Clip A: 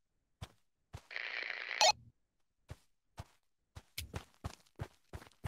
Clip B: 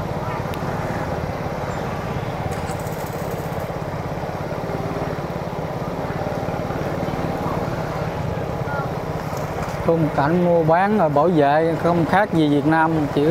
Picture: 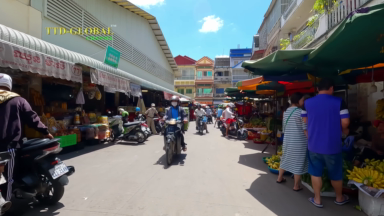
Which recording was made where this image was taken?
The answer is B